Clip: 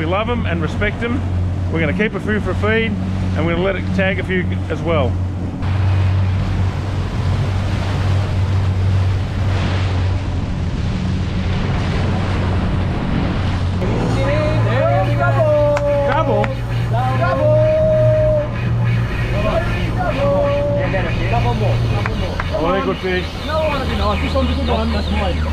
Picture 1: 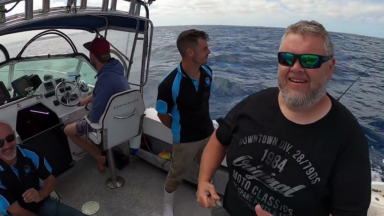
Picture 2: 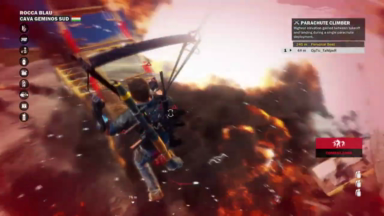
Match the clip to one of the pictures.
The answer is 1